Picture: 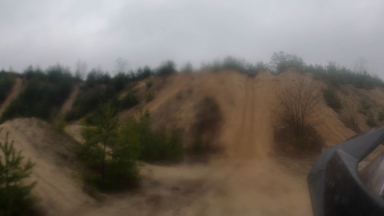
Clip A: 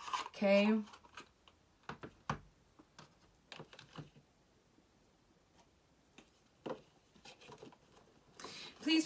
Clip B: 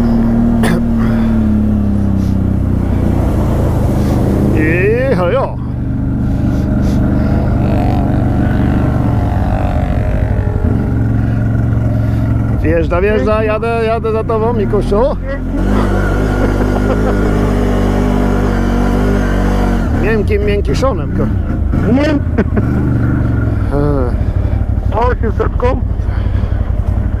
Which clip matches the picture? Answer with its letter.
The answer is B